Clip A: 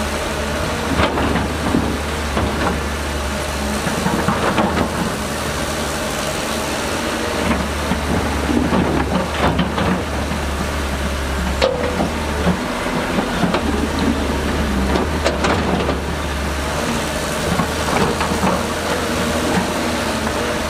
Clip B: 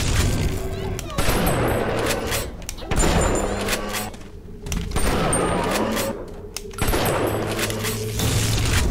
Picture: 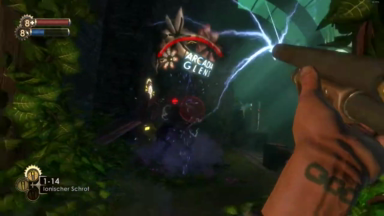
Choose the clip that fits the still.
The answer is B